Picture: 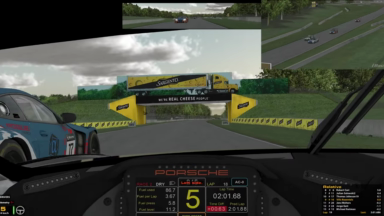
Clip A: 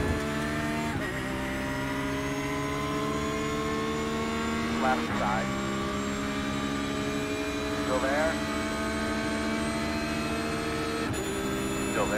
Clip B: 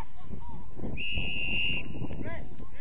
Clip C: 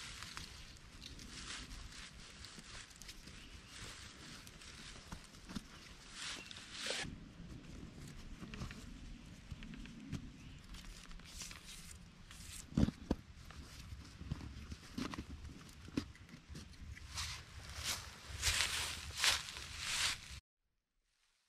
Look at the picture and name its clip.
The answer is A